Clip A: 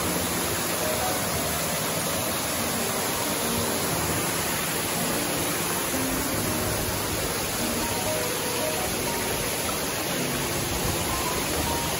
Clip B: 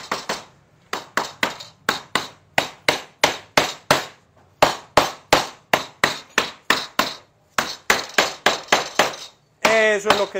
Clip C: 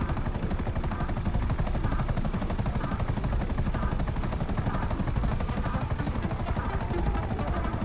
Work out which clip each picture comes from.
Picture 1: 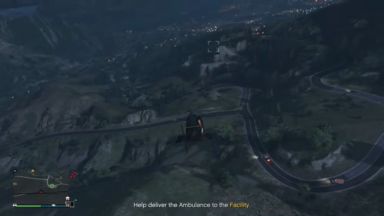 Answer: C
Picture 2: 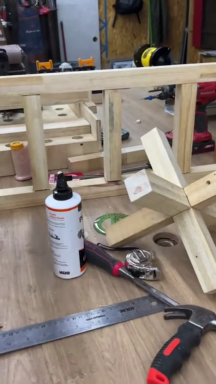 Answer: B